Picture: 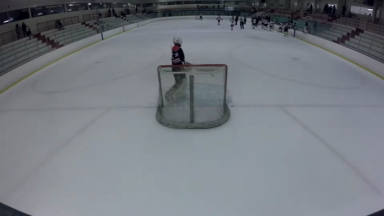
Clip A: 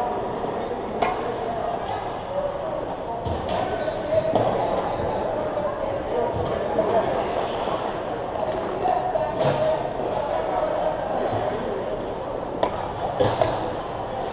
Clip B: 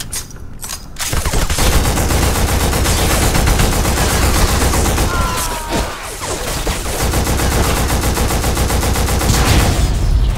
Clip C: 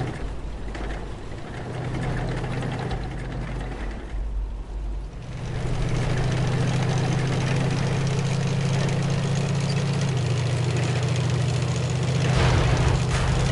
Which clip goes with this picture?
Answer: A